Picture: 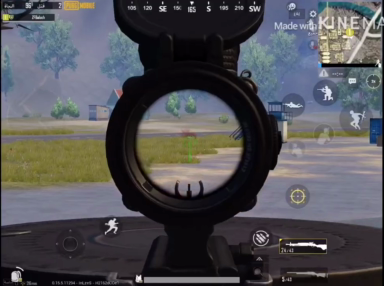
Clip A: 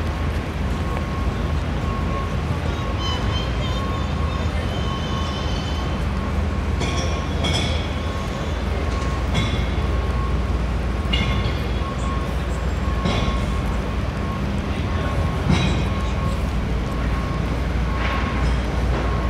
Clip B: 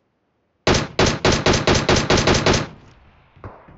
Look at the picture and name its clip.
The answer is B